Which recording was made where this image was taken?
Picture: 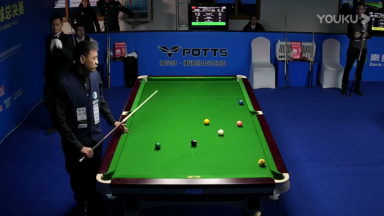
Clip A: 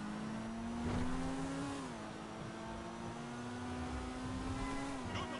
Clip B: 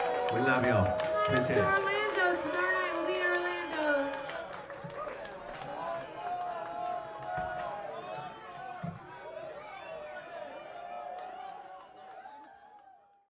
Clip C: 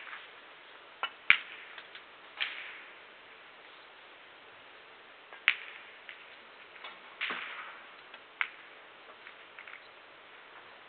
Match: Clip C